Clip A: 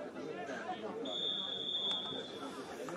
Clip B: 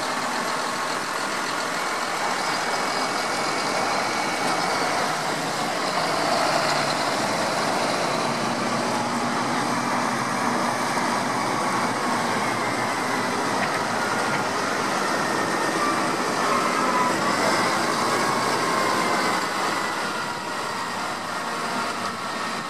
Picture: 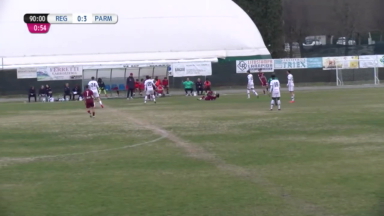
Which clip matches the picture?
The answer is A